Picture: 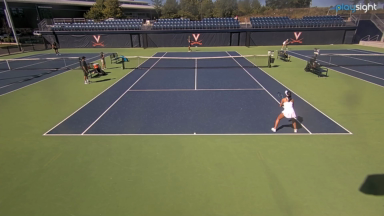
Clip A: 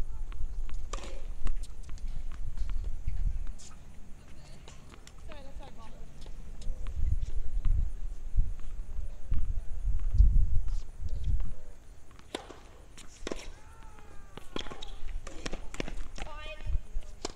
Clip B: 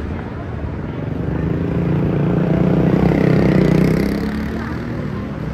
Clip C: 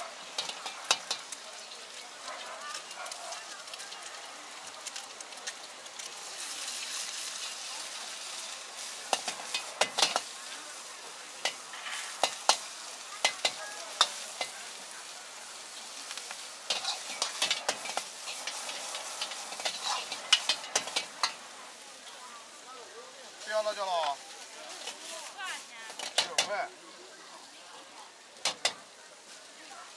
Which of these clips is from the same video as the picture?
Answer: A